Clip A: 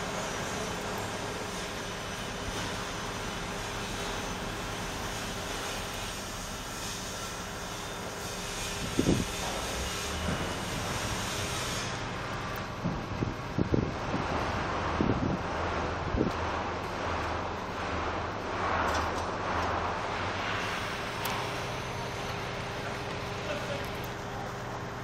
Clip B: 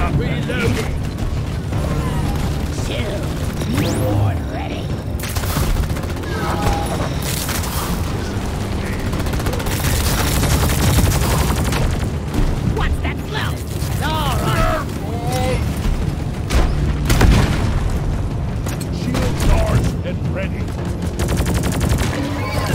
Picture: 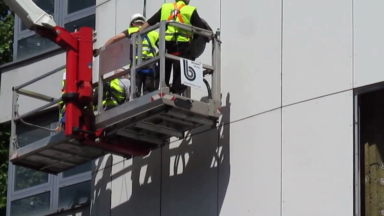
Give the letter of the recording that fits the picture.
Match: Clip A